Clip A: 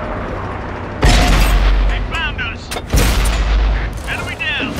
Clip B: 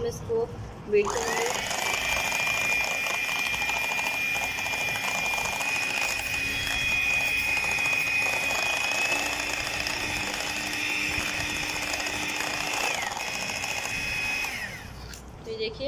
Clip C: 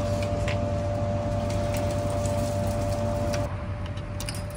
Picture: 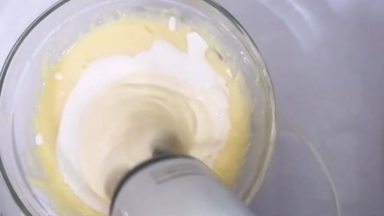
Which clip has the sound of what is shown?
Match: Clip B